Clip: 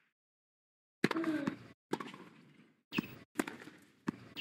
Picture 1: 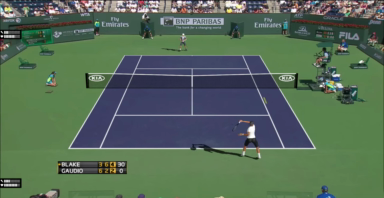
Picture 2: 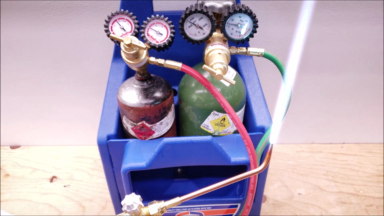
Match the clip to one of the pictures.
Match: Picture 1